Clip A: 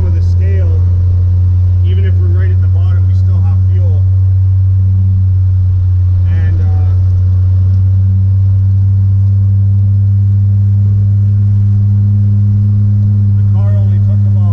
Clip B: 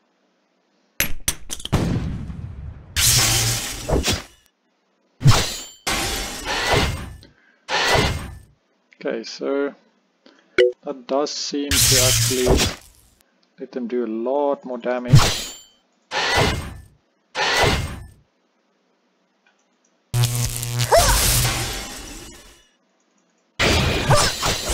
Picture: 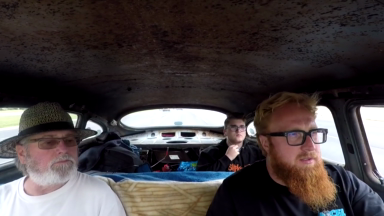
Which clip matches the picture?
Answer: A